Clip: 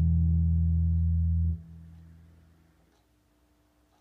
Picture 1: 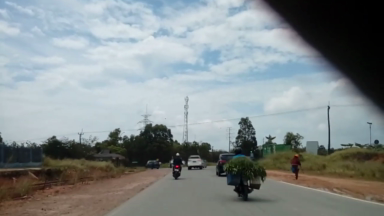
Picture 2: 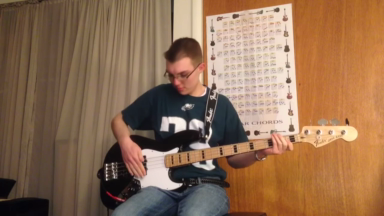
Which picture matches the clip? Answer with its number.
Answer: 2